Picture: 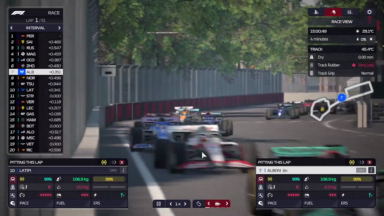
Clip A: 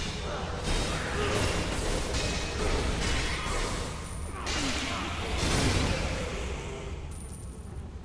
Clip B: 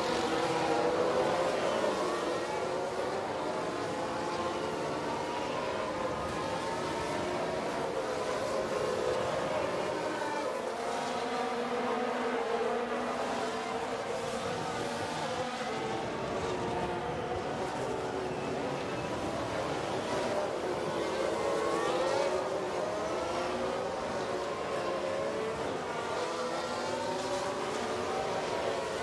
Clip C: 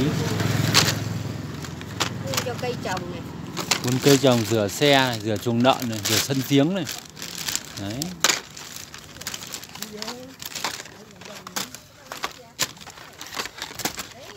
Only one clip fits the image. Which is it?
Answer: B